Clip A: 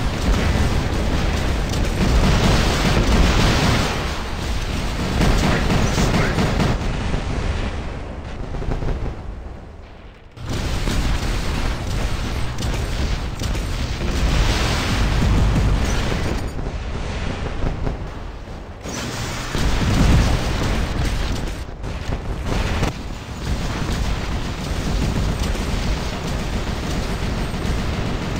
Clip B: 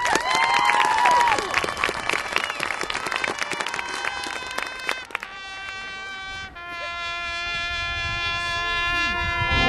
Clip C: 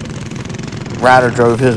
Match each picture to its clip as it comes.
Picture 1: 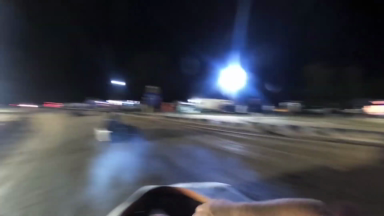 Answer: C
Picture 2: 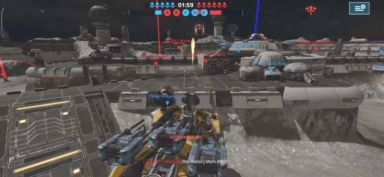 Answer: A